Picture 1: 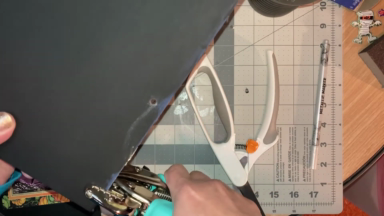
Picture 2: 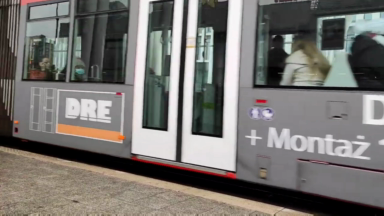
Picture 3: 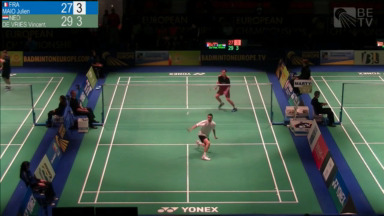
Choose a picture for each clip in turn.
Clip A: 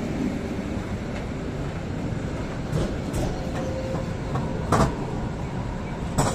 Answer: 2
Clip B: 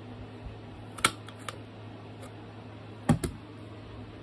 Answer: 1